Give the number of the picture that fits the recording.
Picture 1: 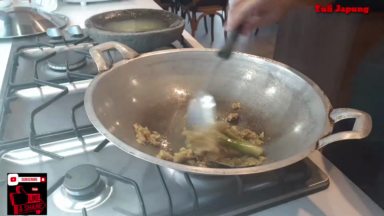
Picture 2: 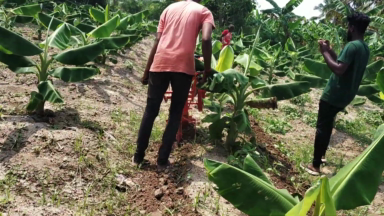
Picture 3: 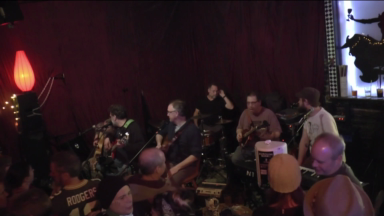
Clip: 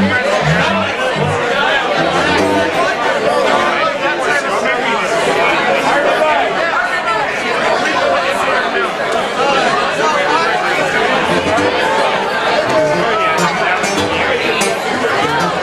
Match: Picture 3